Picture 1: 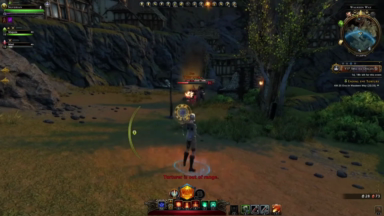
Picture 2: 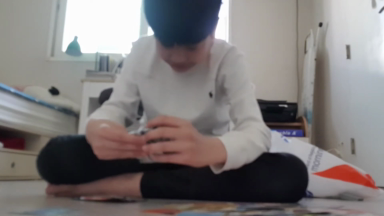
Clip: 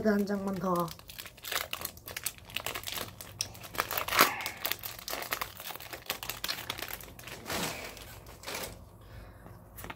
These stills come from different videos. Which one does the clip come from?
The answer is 2